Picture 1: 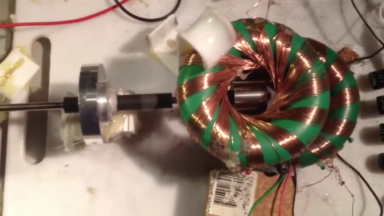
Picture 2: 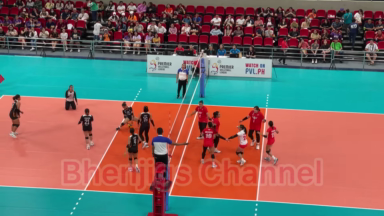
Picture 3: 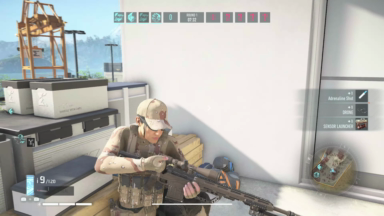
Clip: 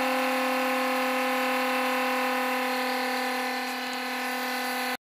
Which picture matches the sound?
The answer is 1